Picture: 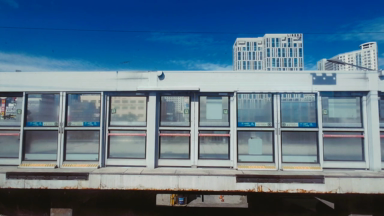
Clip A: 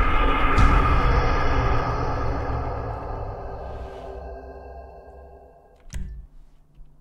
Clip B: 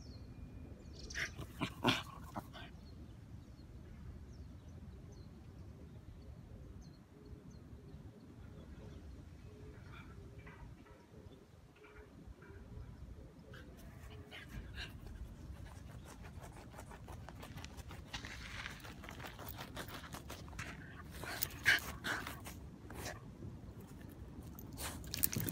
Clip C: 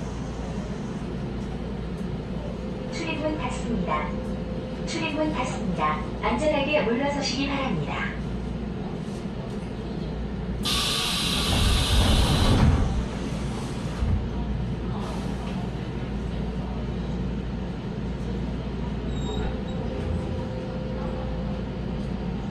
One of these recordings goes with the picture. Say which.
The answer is C